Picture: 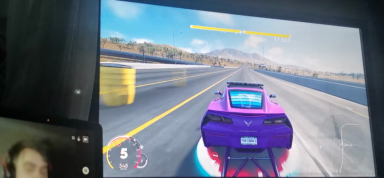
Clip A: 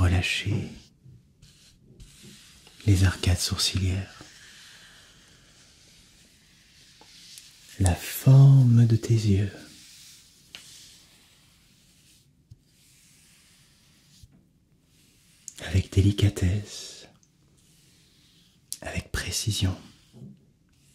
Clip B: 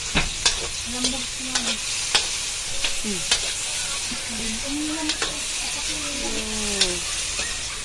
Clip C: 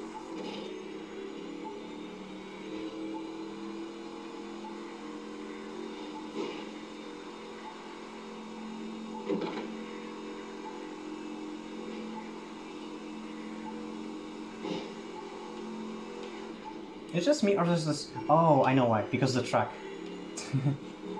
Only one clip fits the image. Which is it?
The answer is C